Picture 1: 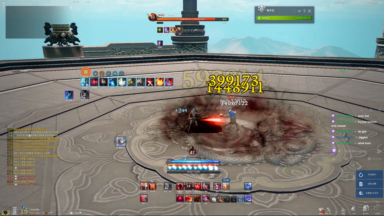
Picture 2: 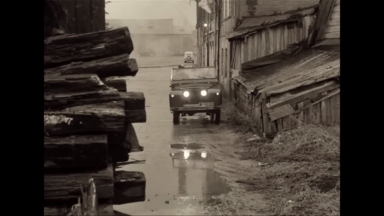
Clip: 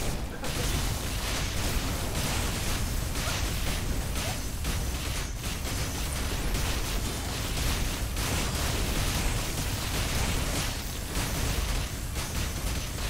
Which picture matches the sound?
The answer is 1